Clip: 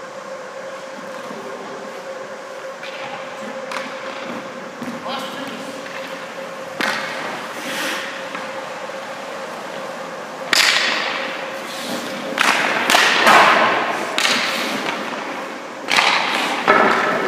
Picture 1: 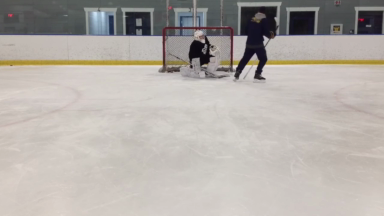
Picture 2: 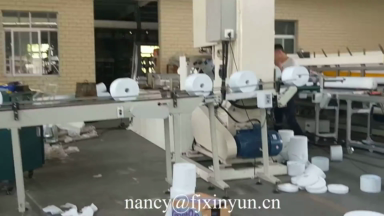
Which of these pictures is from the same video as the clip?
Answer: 1